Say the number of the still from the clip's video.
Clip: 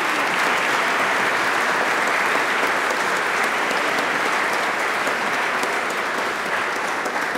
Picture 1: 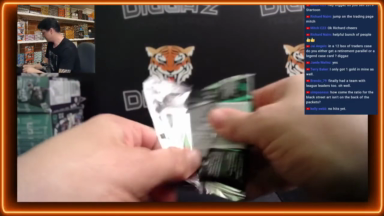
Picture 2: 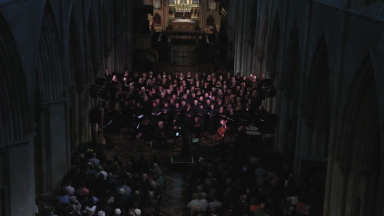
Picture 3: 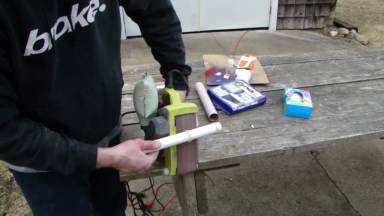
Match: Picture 2